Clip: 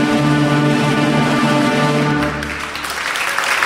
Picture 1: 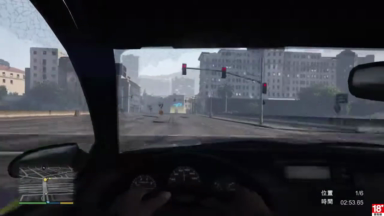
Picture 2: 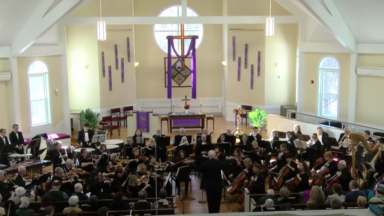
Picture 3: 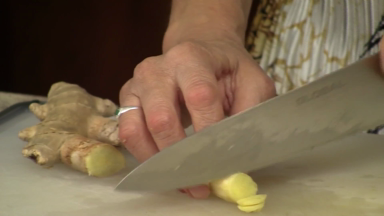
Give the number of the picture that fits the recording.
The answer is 2